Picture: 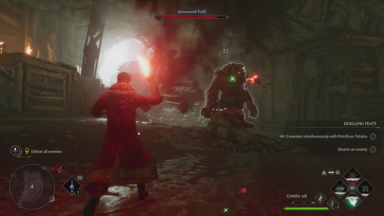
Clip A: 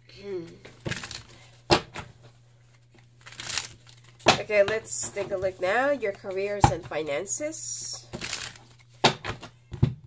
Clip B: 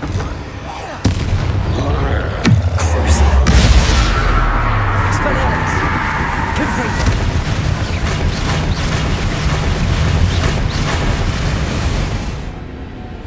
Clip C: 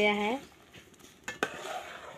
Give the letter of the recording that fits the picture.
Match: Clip B